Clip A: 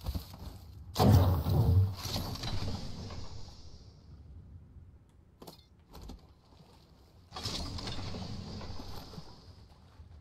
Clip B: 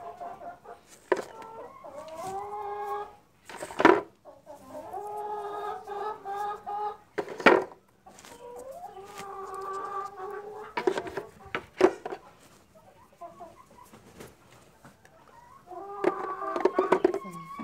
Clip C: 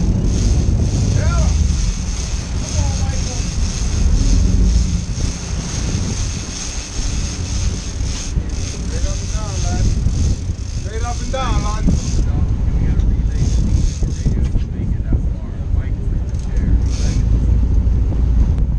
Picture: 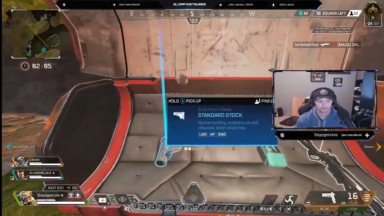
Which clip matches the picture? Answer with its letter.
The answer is A